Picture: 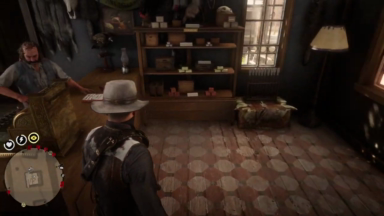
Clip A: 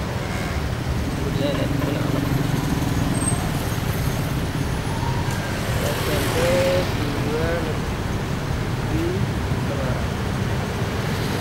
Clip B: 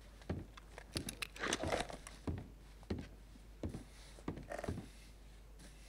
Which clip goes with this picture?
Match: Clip B